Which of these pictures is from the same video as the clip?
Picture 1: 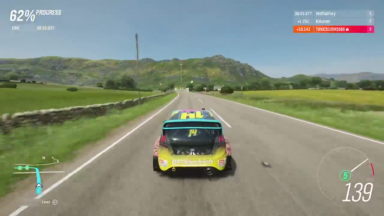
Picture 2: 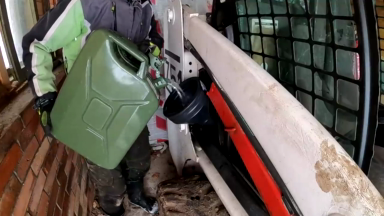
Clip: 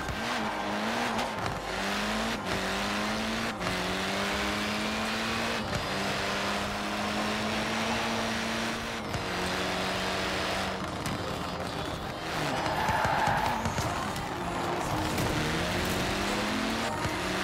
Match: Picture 1